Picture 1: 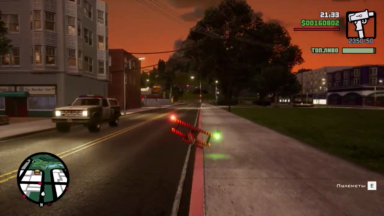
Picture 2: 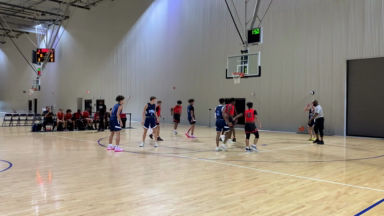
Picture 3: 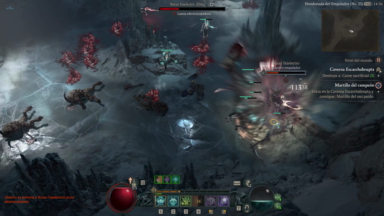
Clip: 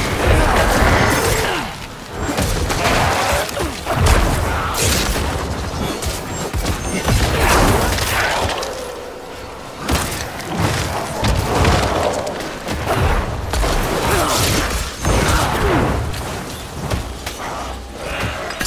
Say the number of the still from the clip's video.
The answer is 3